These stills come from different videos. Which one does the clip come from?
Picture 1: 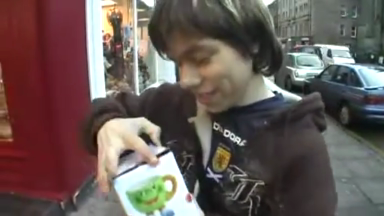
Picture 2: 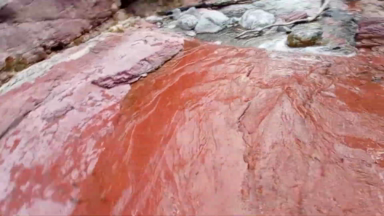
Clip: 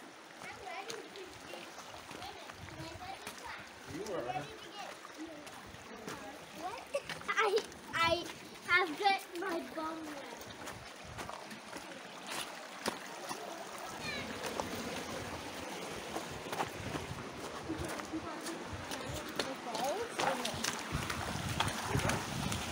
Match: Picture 2